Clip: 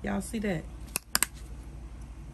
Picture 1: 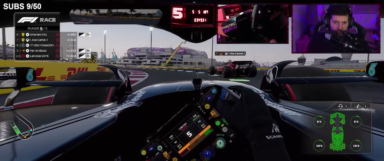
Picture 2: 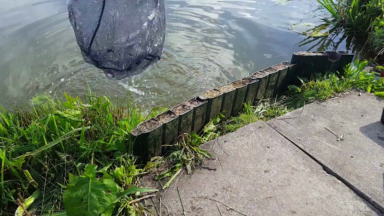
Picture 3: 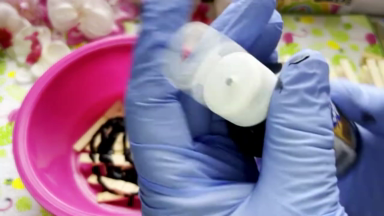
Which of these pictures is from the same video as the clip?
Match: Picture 3